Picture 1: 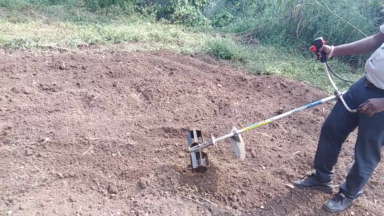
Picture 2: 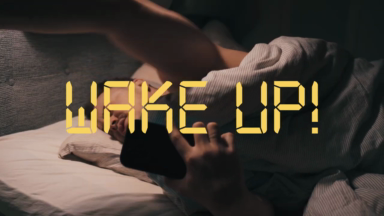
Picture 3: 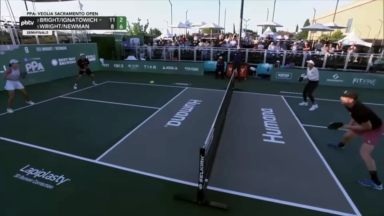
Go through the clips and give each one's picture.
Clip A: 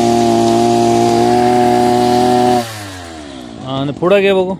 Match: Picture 1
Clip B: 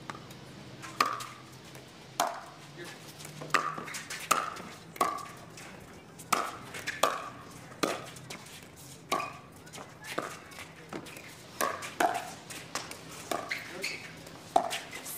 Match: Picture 3